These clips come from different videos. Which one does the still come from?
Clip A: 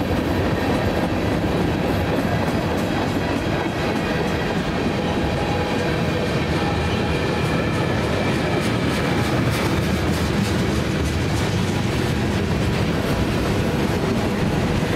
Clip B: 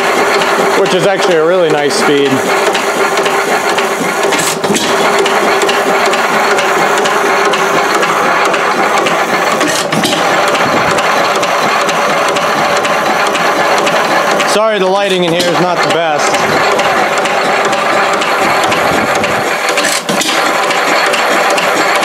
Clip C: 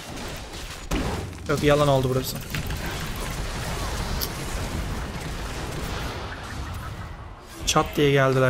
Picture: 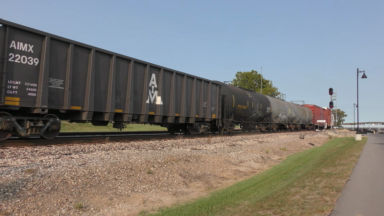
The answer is A